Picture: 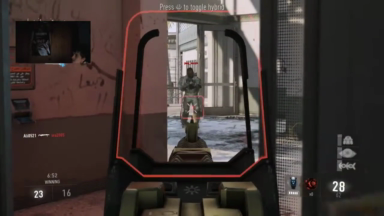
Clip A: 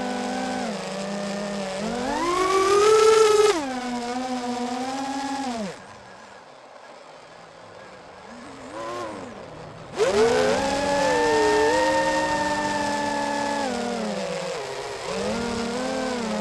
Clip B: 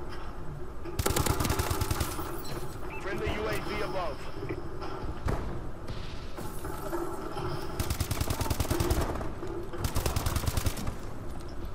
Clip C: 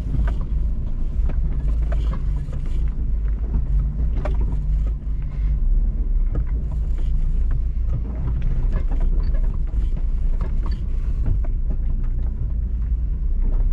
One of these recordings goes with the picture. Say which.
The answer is B